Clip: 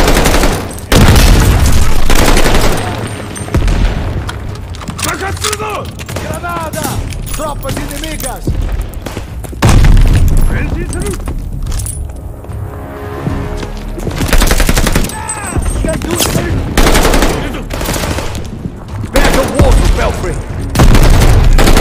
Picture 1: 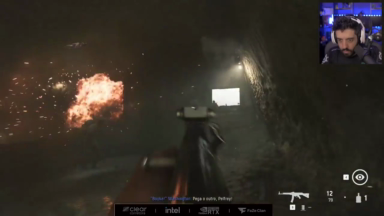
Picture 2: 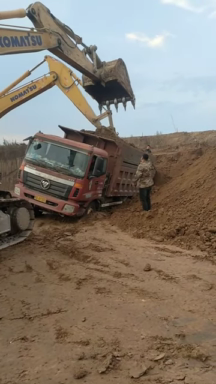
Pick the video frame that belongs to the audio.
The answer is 1